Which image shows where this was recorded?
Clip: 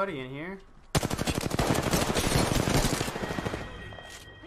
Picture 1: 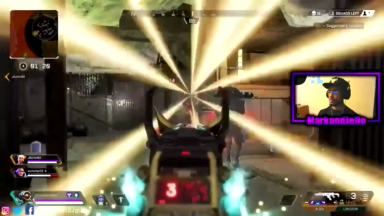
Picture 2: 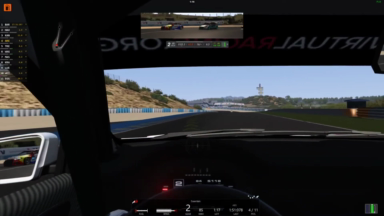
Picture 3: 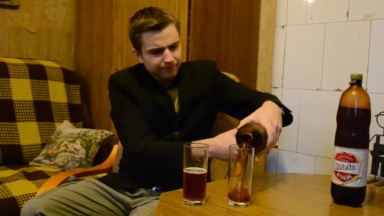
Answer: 1